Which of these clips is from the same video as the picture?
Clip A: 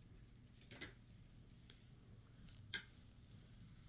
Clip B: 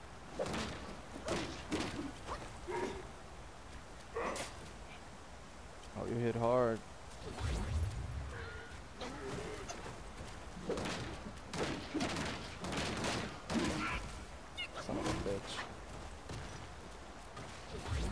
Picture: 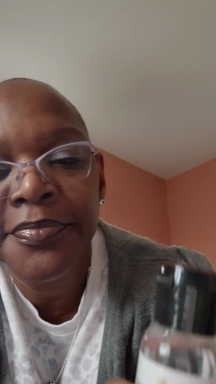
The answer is A